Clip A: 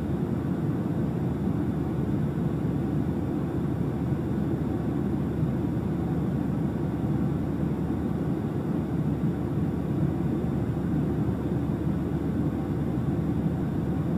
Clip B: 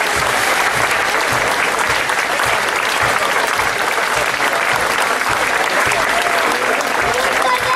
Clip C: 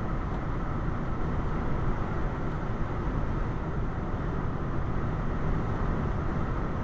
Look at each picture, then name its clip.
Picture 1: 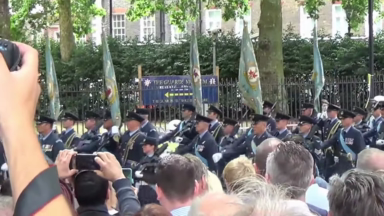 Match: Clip B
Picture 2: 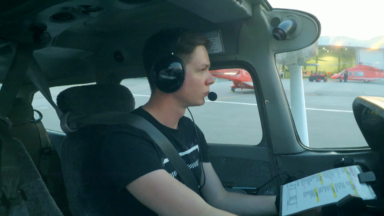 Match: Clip A